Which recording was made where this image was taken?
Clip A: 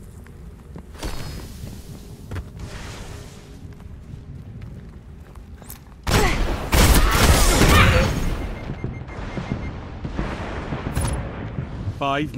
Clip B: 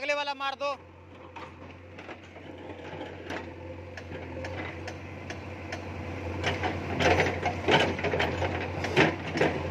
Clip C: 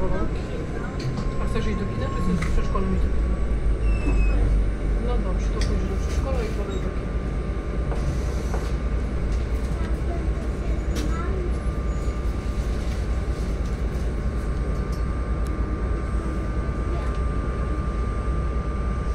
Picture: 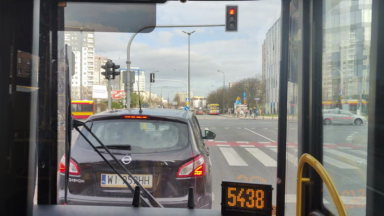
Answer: C